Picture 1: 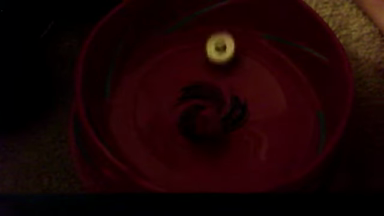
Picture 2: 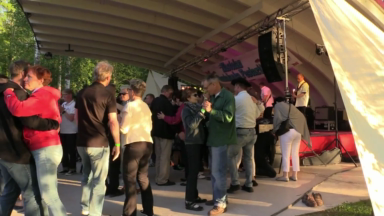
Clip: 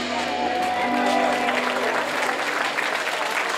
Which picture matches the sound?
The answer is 2